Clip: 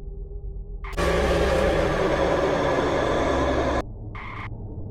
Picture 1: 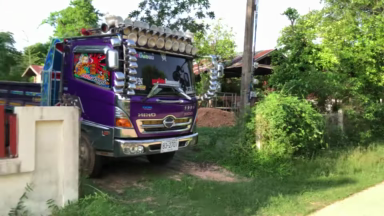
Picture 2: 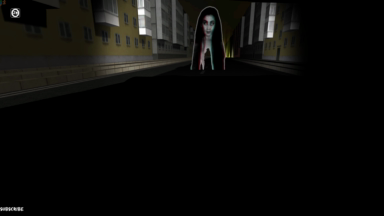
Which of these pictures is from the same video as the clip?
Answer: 2